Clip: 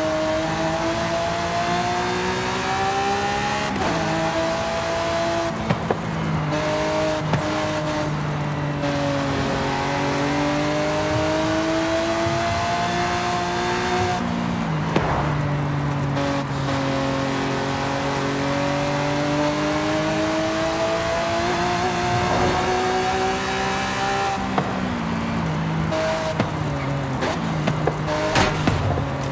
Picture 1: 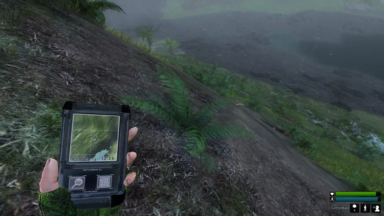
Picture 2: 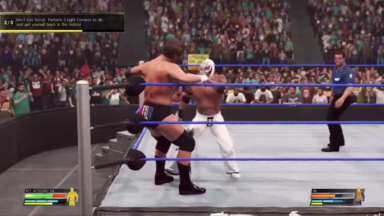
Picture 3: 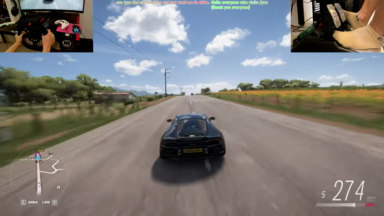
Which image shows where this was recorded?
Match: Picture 3